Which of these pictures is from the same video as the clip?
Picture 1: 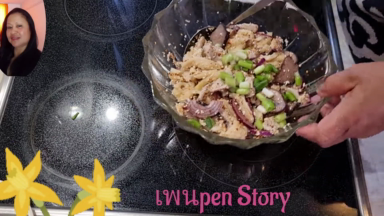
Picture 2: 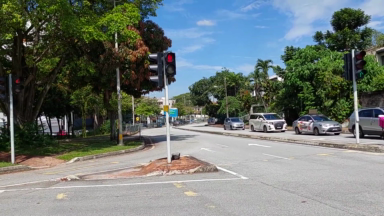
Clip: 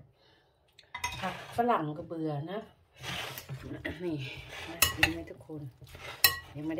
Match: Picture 1